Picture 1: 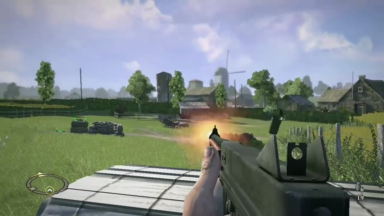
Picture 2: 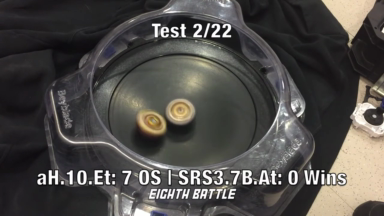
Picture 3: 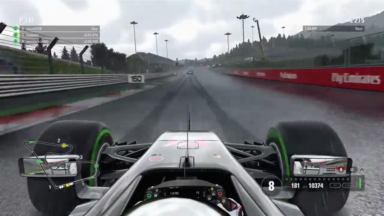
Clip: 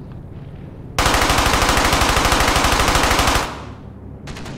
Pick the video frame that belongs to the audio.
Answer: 1